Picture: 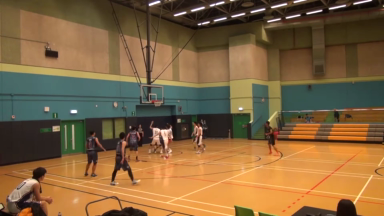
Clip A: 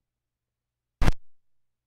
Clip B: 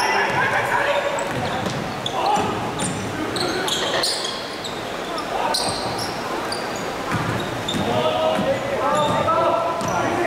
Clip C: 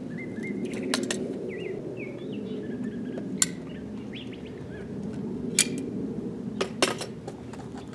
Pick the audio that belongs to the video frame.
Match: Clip B